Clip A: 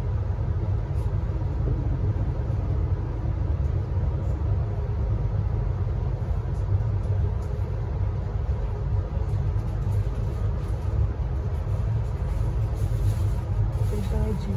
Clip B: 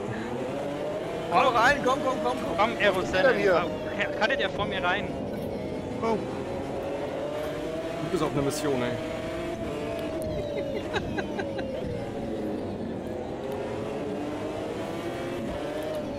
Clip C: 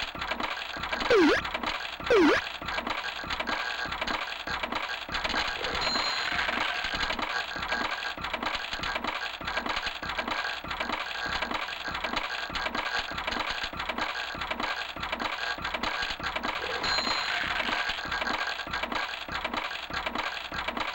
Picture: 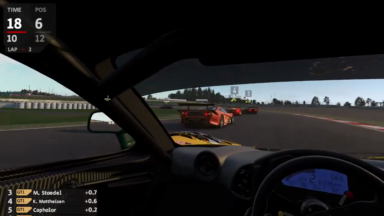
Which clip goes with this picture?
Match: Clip B